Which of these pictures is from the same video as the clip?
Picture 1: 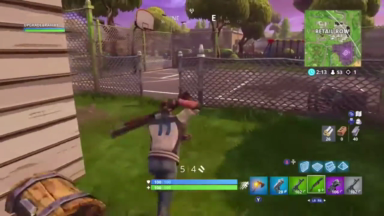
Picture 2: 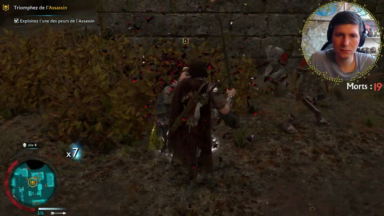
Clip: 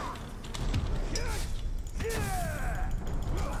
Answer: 2